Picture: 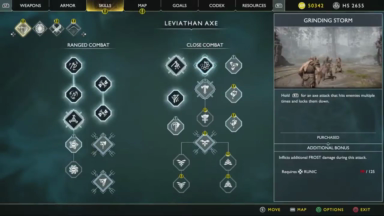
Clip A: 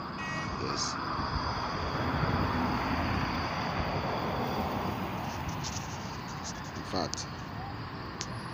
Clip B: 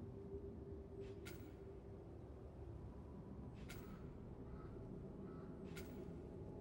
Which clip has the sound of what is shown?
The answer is B